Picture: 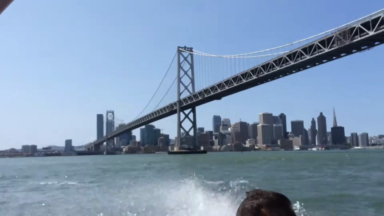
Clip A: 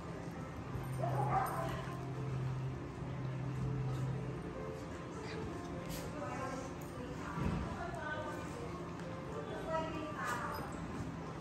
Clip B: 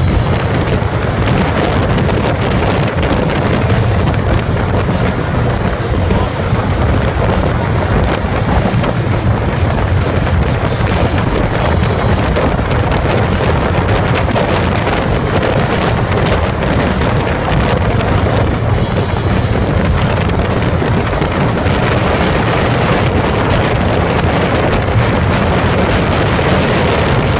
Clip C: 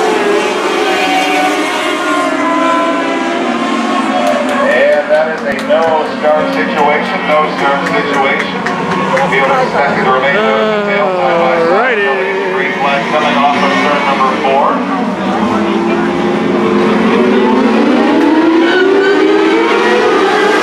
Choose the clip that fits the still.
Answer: B